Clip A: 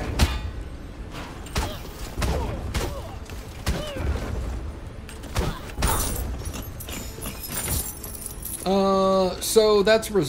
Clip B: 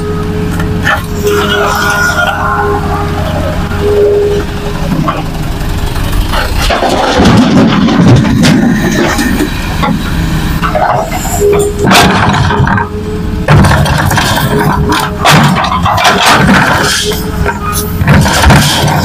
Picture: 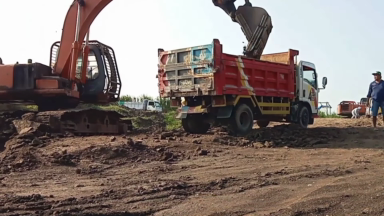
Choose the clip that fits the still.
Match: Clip B